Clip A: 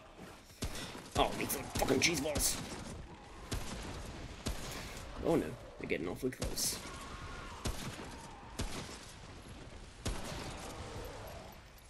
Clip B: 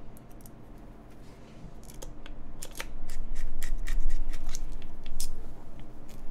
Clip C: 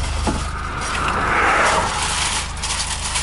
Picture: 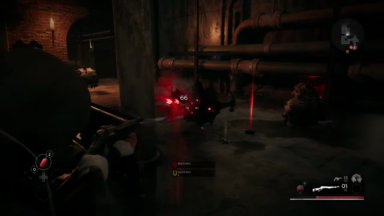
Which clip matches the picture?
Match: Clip A